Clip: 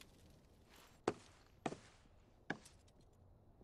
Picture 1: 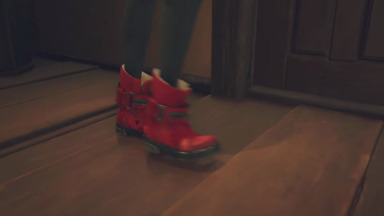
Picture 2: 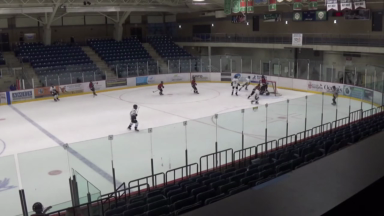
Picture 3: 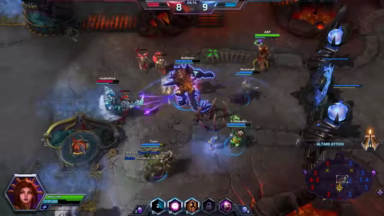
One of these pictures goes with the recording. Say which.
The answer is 1